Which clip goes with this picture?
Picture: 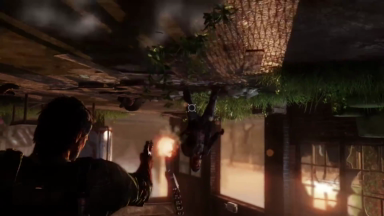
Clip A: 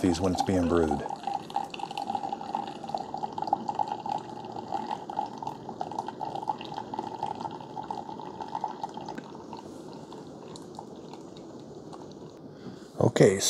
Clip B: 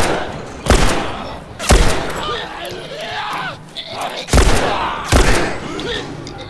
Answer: B